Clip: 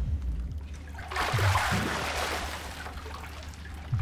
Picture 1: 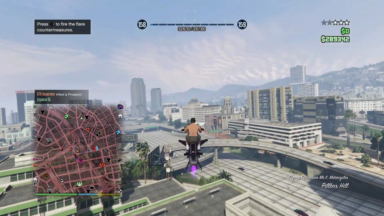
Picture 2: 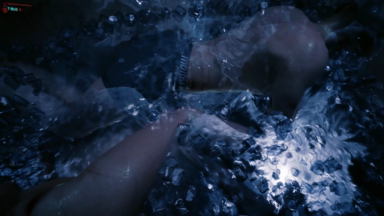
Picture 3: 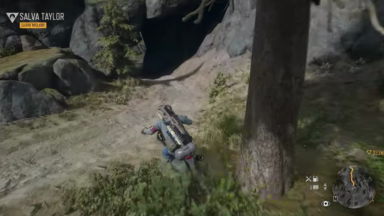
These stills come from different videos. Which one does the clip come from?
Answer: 2